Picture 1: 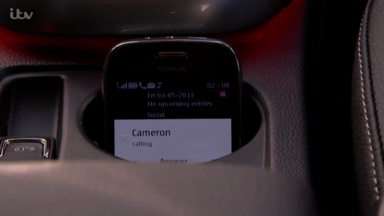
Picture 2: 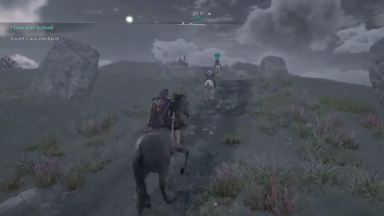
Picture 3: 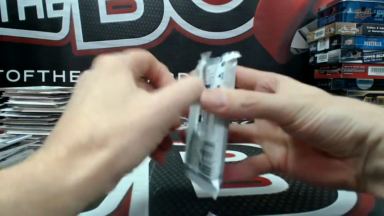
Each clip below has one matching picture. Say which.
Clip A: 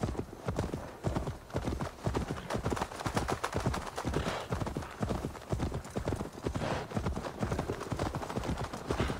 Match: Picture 2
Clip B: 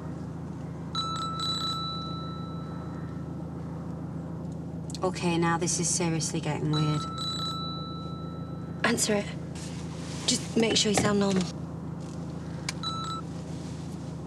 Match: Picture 1